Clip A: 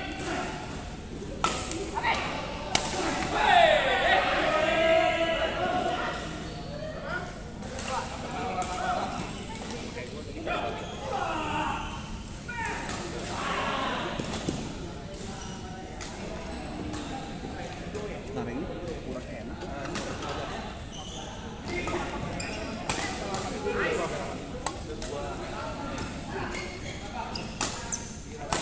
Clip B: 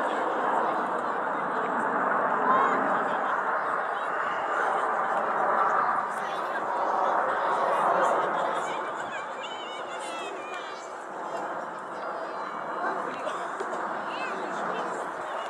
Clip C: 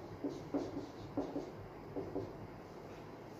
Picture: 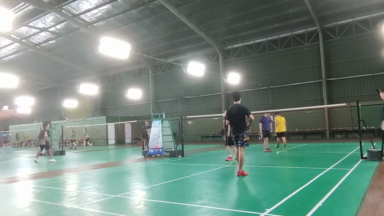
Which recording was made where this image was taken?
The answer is A